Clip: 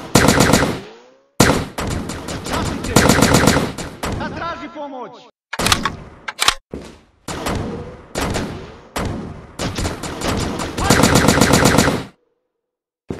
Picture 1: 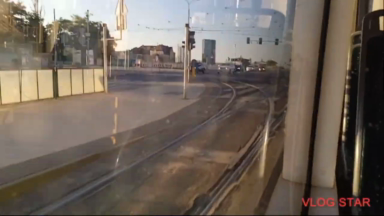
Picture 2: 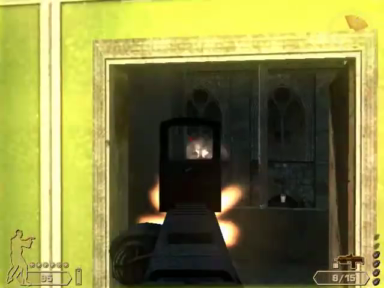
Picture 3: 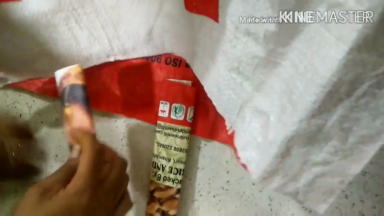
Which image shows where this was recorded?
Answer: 2